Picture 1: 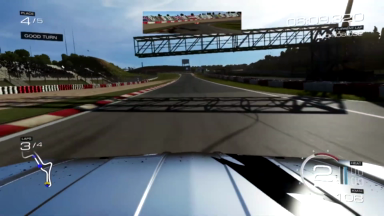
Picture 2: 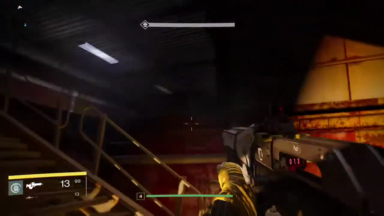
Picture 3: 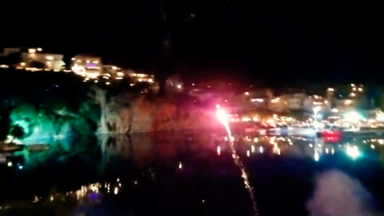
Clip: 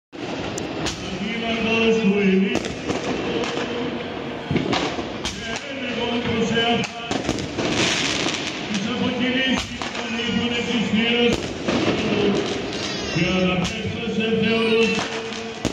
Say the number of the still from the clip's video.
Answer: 3